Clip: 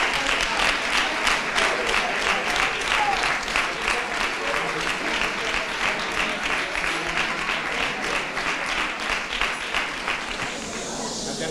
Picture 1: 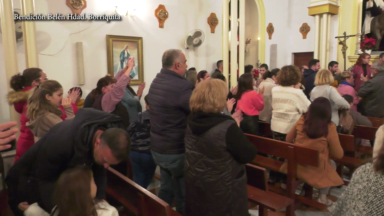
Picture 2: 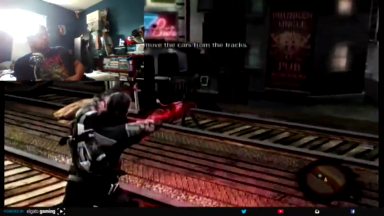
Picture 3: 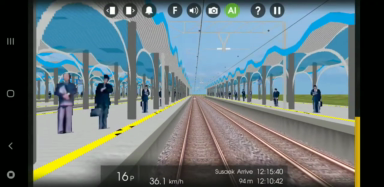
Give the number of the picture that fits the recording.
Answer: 1